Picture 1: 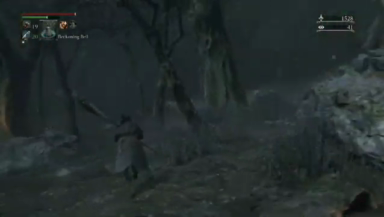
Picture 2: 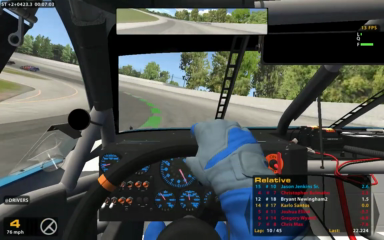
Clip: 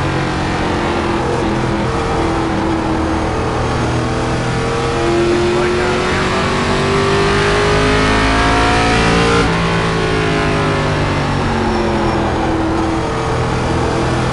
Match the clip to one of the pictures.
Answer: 2